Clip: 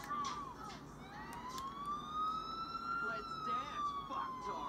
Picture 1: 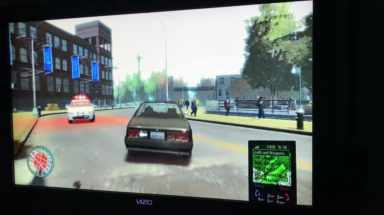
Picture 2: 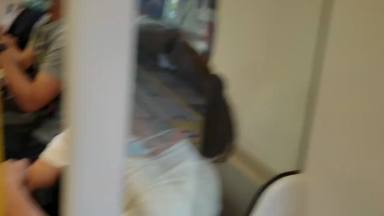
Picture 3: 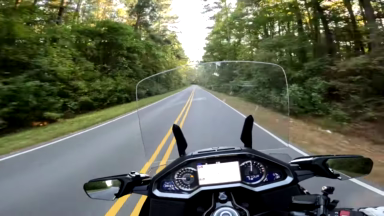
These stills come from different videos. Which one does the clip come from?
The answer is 1